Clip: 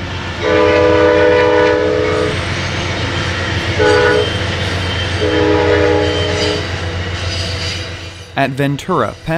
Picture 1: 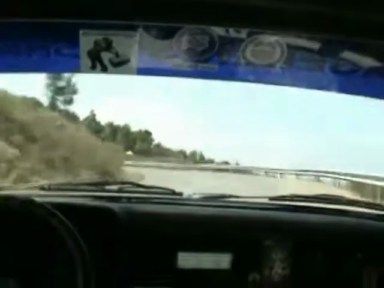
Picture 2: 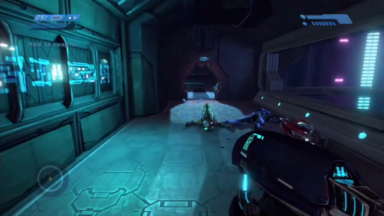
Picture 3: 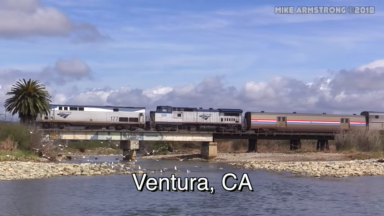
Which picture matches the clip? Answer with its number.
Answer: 3